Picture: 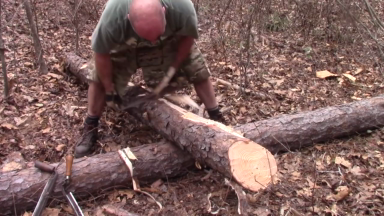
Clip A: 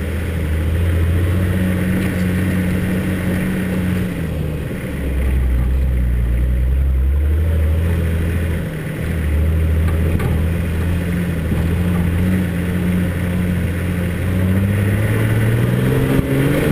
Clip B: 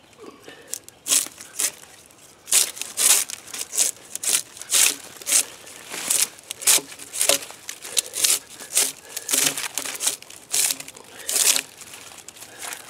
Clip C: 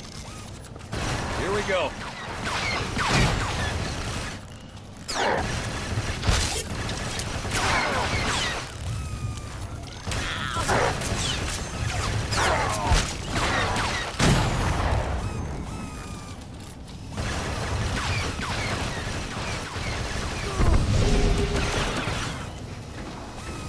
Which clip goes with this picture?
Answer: B